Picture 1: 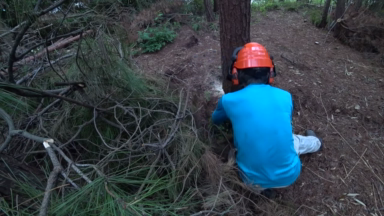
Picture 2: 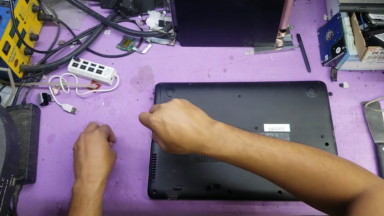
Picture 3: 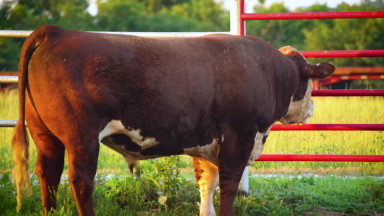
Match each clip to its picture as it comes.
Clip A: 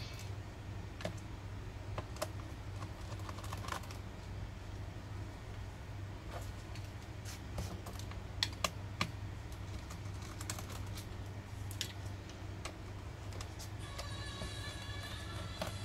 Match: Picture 2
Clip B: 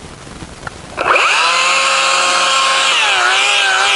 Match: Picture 1